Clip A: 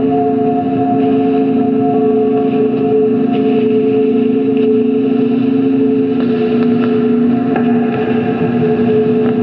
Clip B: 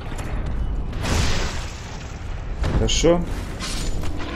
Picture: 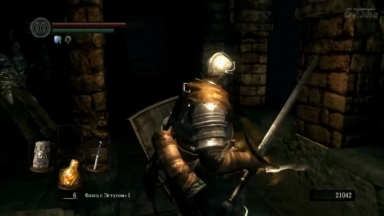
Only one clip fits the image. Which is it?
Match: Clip B